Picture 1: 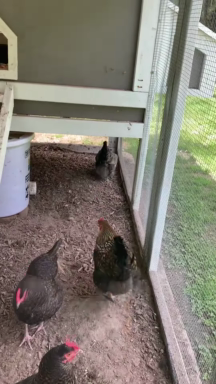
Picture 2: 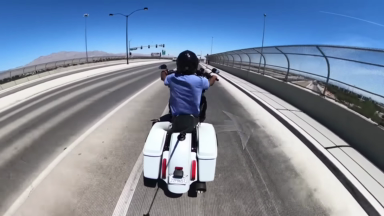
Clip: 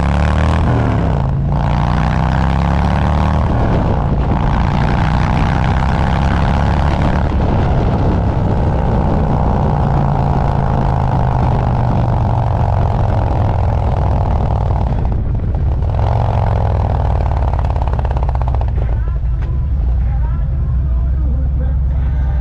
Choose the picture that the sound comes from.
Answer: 2